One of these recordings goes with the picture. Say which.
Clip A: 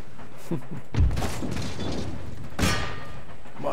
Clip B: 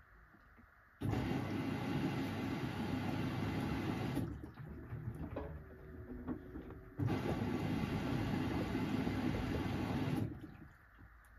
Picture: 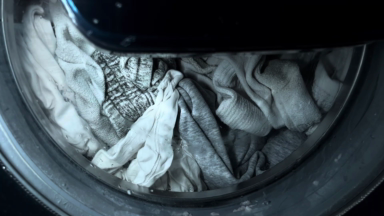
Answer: B